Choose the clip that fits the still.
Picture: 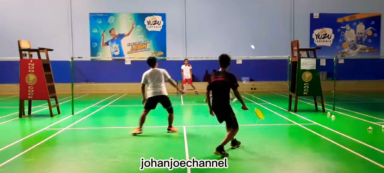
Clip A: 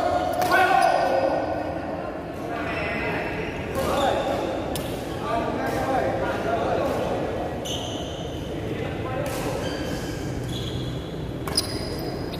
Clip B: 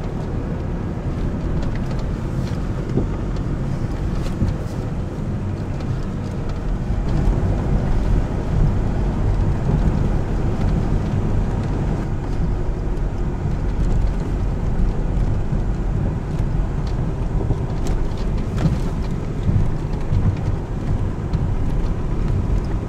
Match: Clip A